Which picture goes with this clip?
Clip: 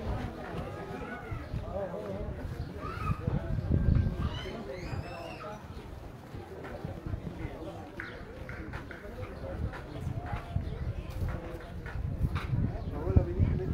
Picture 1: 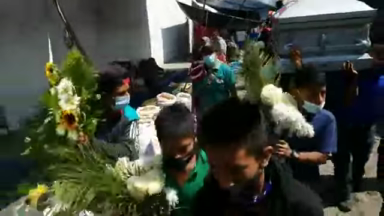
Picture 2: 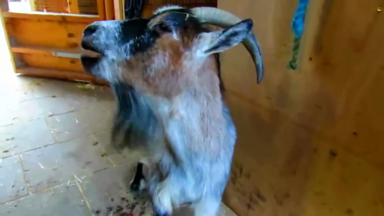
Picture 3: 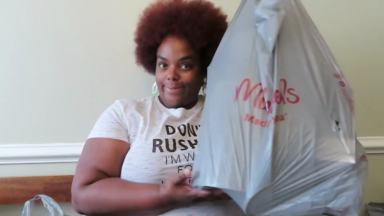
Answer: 1